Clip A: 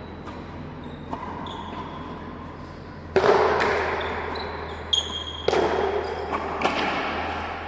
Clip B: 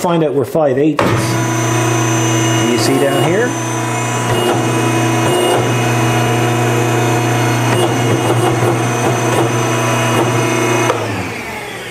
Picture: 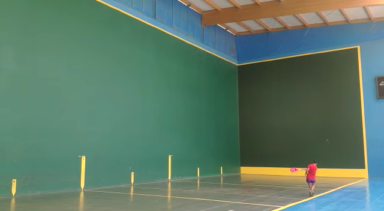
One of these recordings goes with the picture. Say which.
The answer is A